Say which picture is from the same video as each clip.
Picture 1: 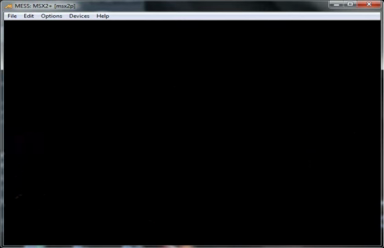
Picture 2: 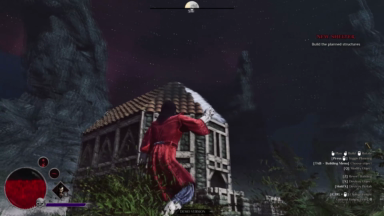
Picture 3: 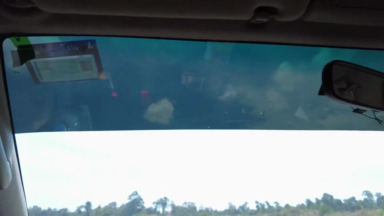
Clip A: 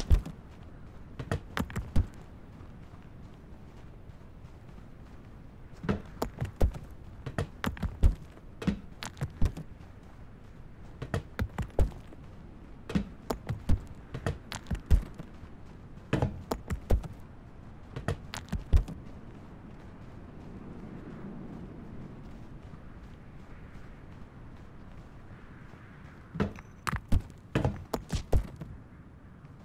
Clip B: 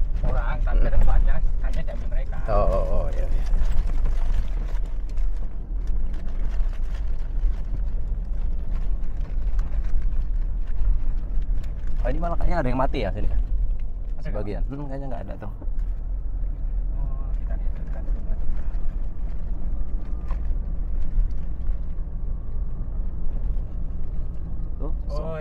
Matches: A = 2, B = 3